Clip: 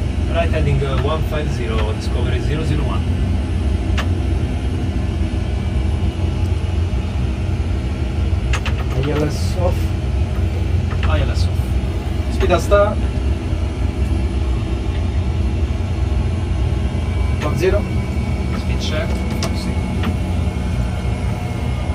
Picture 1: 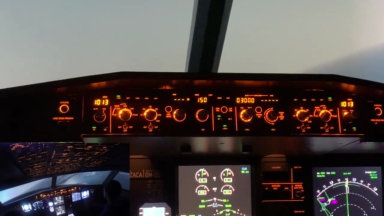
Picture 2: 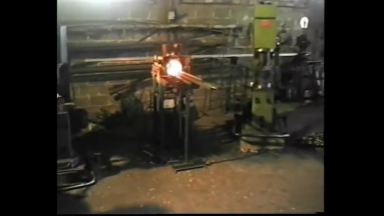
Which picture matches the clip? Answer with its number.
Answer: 1